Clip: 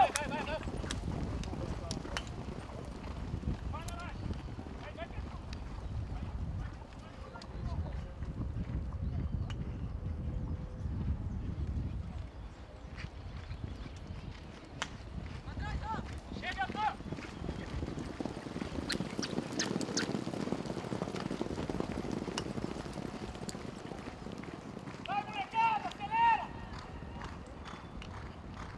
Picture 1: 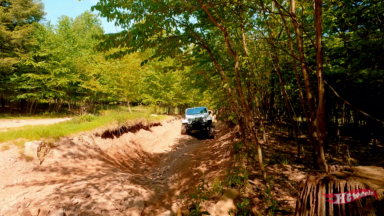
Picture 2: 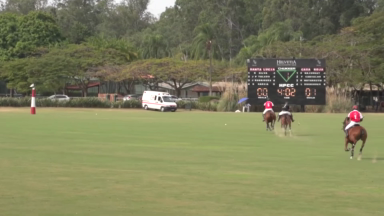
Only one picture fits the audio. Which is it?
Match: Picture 2